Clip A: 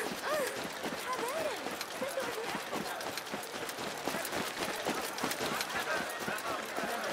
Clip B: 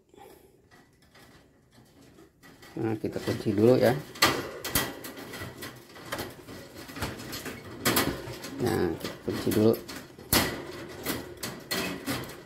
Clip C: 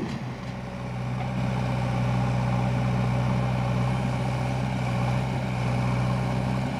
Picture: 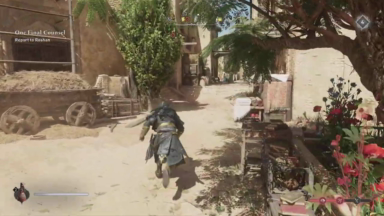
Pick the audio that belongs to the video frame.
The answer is A